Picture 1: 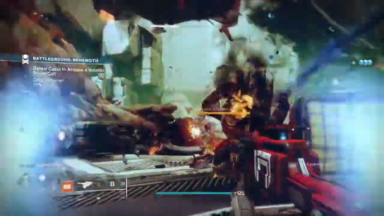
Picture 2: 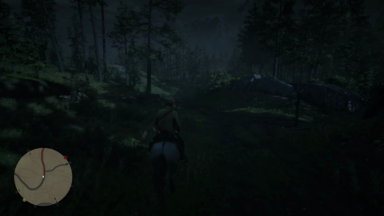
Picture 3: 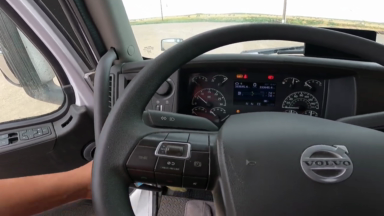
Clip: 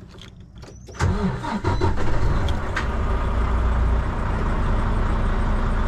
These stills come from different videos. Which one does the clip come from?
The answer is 3